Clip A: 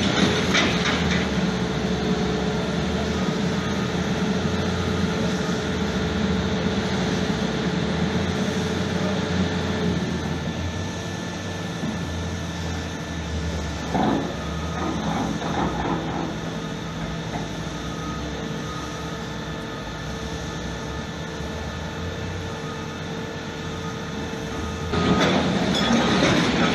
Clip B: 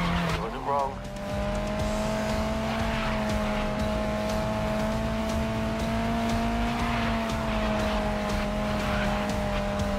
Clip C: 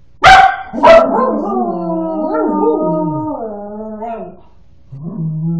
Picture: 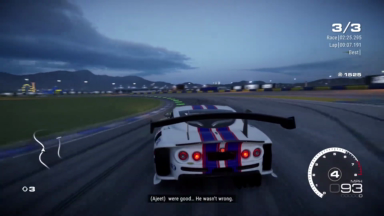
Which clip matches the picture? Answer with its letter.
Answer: B